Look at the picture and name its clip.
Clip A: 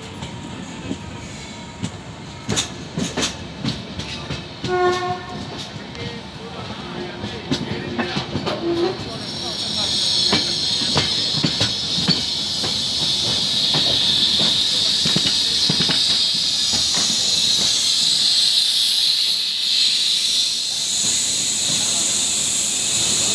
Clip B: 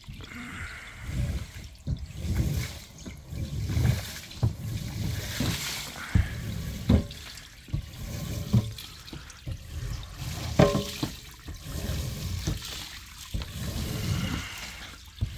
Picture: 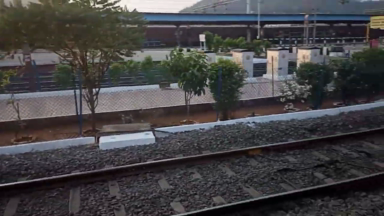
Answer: A